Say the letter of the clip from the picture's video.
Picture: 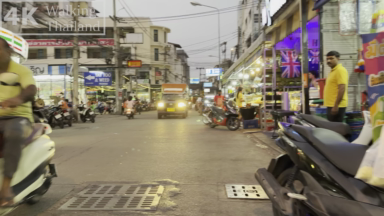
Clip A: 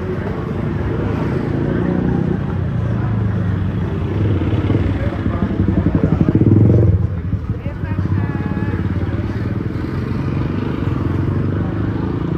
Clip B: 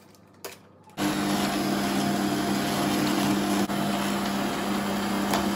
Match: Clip A